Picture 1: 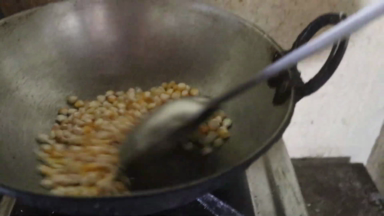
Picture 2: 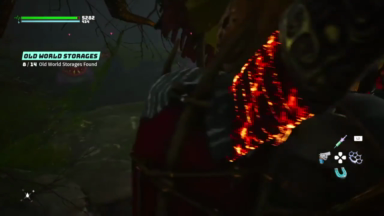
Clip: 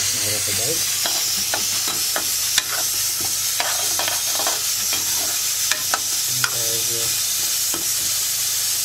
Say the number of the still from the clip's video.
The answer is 1